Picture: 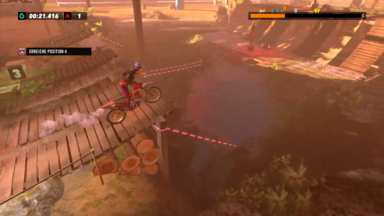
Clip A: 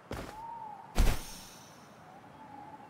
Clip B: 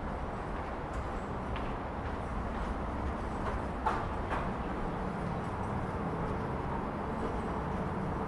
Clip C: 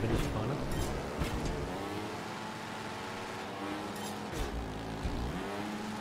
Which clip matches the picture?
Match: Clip C